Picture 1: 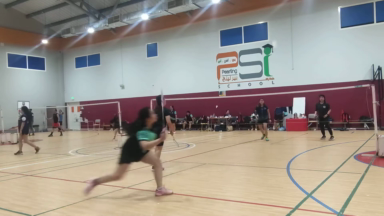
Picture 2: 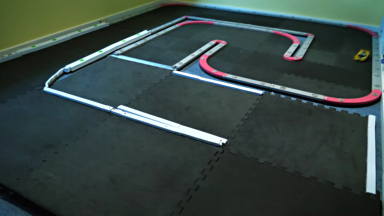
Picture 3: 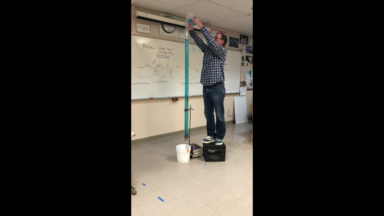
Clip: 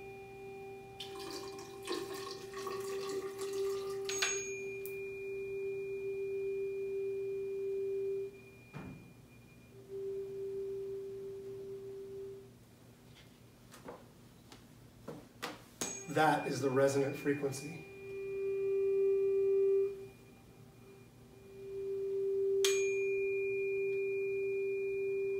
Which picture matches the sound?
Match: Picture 3